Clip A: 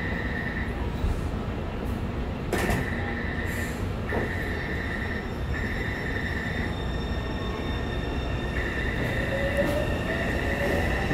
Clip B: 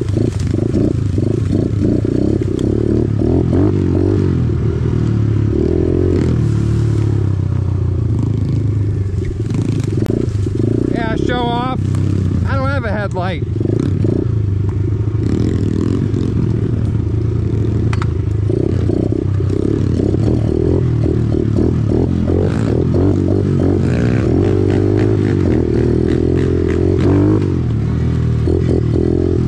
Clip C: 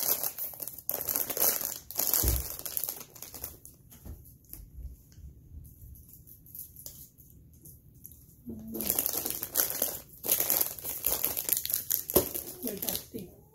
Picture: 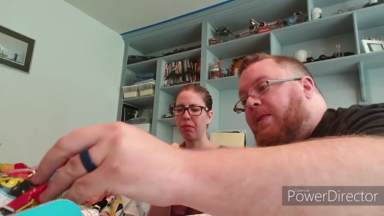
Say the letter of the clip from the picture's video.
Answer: C